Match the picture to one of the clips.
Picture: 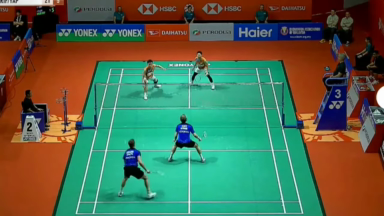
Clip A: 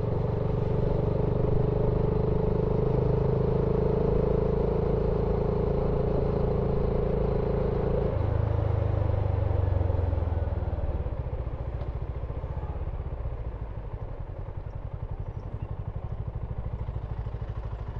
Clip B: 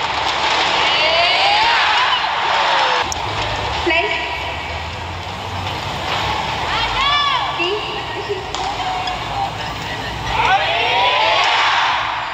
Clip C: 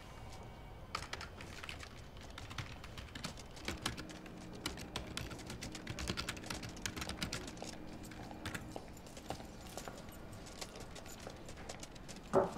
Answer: B